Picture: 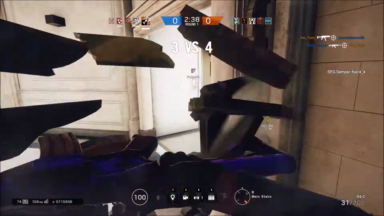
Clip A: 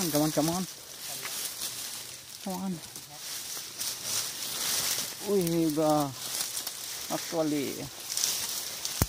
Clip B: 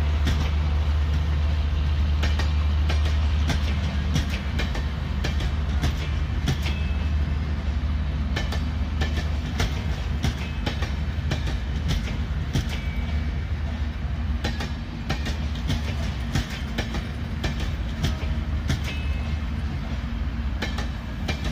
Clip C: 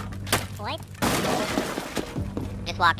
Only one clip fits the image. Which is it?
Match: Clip C